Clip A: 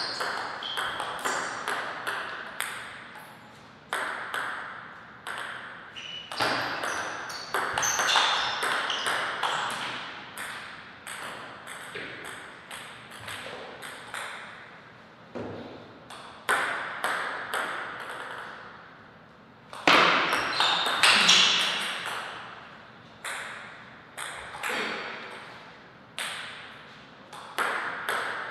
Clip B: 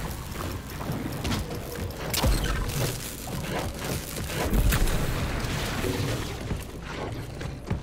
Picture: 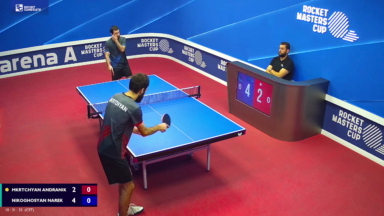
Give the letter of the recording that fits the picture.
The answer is A